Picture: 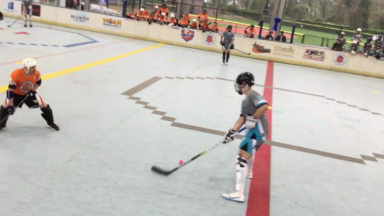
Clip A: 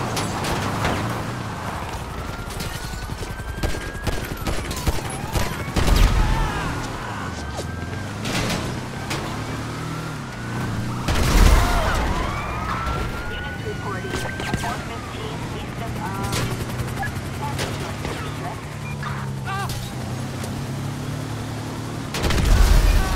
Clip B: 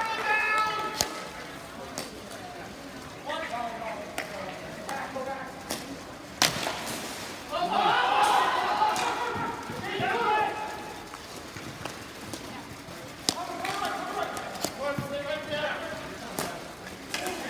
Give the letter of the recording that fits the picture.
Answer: B